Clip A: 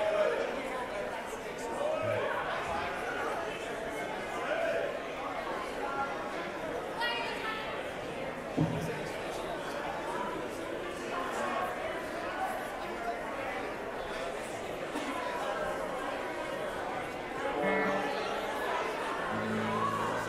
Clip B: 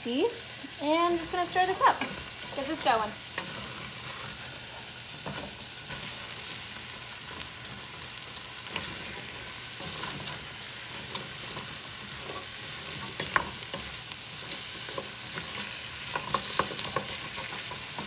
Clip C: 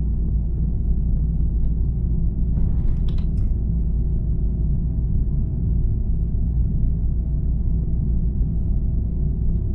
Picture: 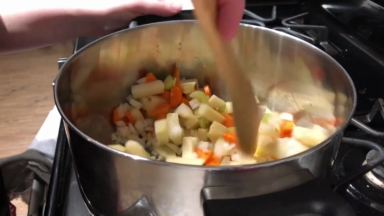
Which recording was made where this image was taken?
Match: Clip B